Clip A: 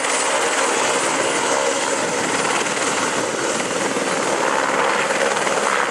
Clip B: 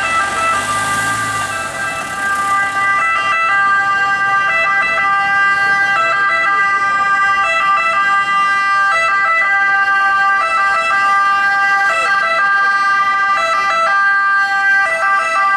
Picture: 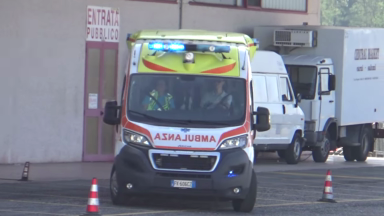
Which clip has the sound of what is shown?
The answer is B